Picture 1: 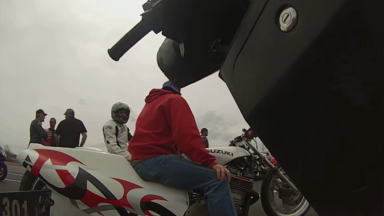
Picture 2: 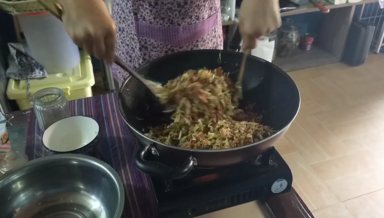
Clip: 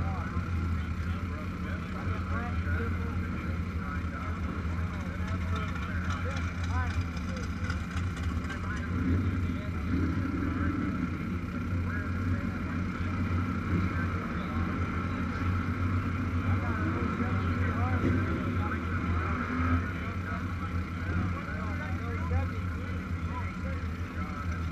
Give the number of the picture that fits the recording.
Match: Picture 1